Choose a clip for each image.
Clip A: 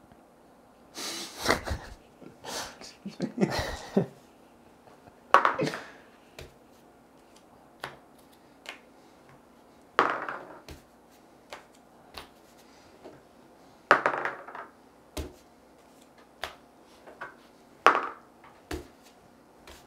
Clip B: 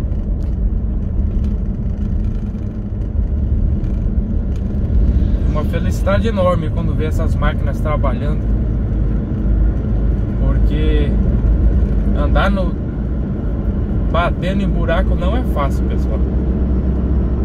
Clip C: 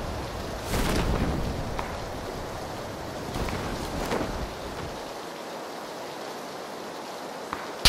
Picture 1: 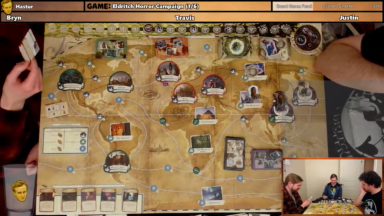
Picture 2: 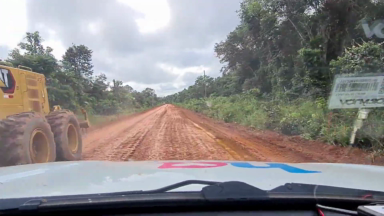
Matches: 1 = A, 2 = B